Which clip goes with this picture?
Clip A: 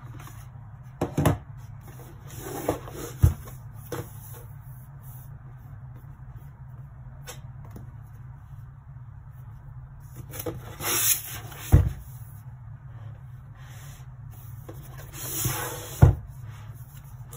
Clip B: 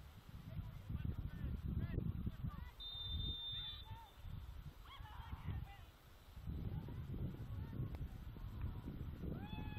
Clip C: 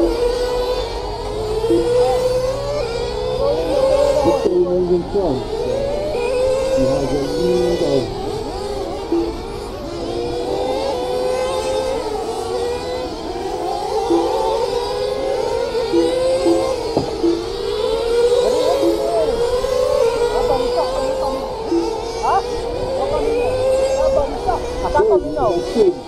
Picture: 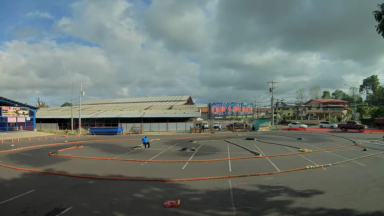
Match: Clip C